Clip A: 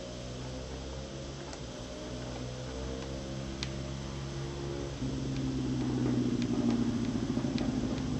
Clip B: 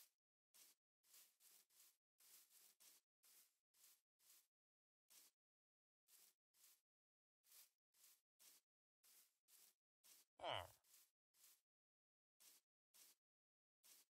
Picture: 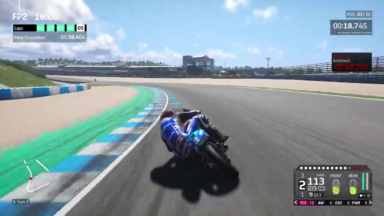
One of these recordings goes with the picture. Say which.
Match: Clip A